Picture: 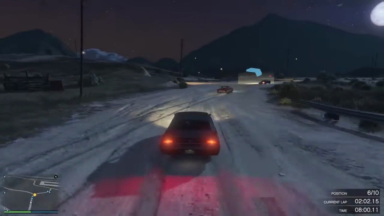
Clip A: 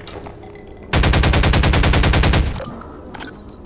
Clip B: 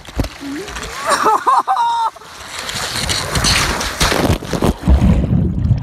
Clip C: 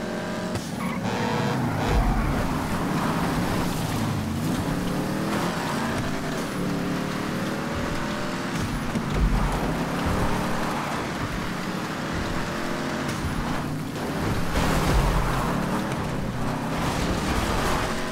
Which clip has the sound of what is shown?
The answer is C